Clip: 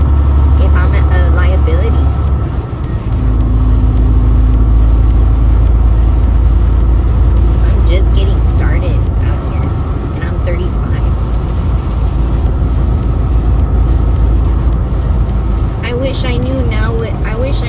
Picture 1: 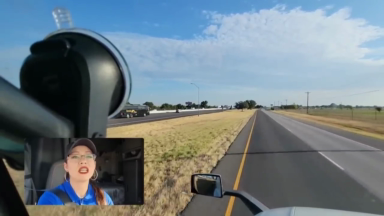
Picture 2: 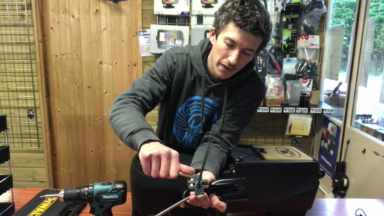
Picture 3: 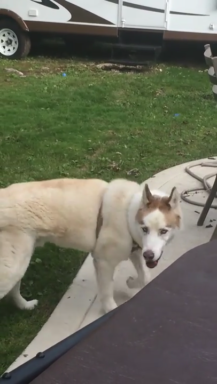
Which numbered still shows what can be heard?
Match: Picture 1